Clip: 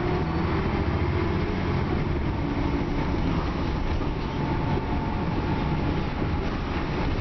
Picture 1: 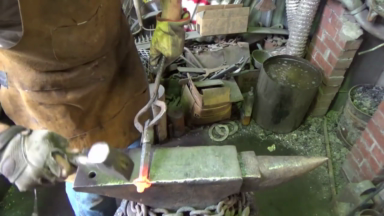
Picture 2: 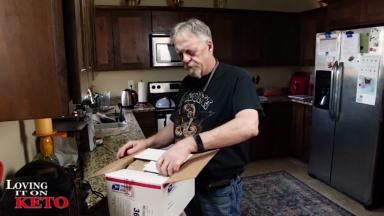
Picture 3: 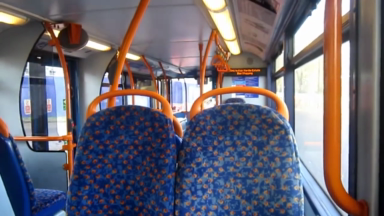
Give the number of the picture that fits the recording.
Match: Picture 3